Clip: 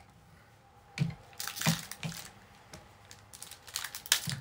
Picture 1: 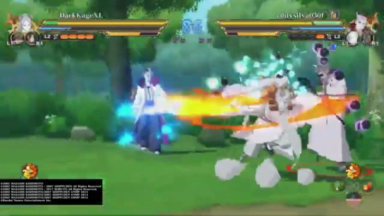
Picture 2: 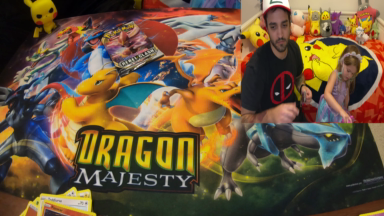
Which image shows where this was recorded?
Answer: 2